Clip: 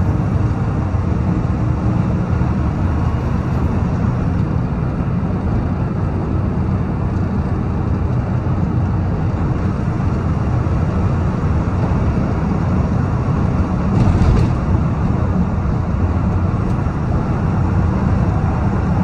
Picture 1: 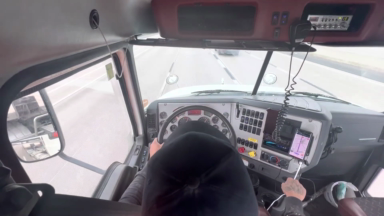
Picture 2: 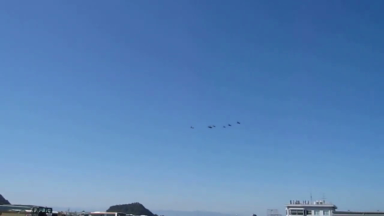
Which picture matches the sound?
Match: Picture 1